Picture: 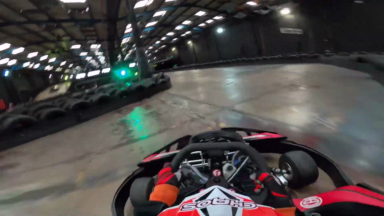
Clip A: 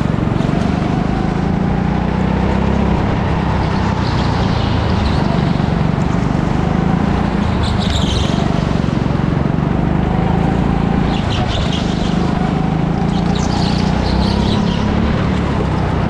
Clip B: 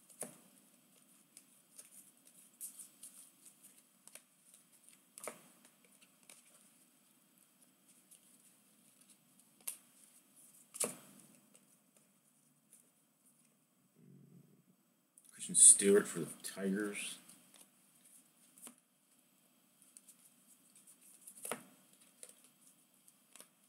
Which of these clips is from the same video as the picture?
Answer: A